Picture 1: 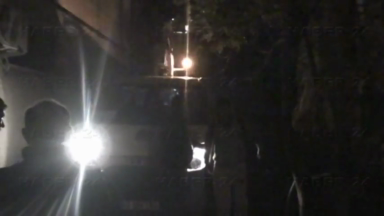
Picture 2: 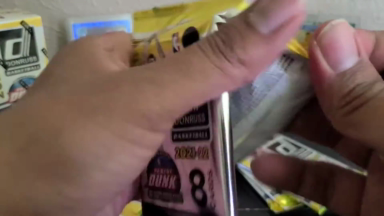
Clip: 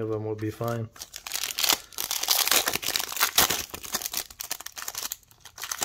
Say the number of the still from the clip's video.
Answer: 2